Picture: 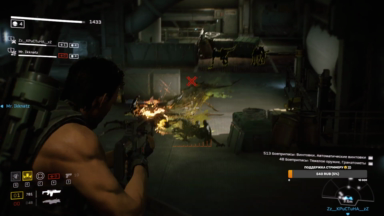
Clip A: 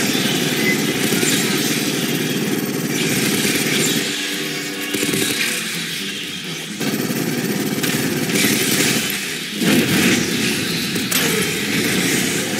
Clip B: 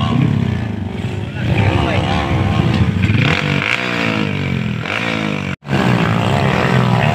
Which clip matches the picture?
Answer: A